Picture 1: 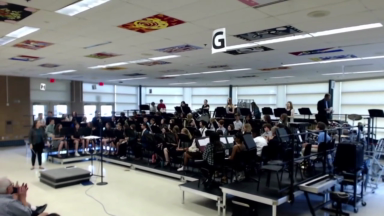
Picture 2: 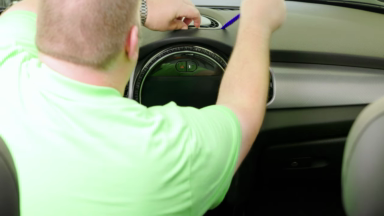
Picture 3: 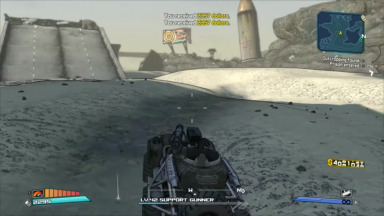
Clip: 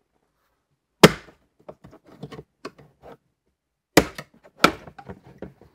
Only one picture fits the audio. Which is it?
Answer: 2